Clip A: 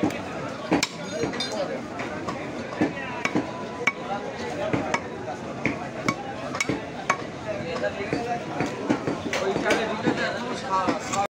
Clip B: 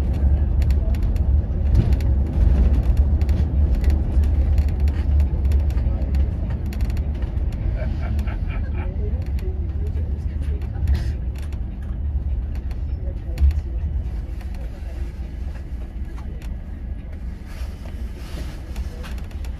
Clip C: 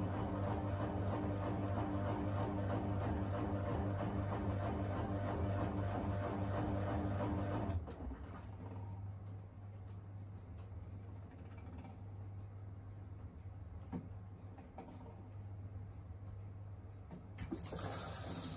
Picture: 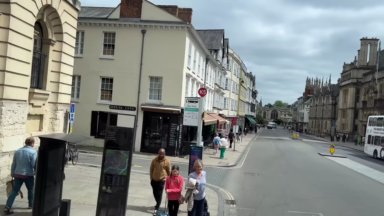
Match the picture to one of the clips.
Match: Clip B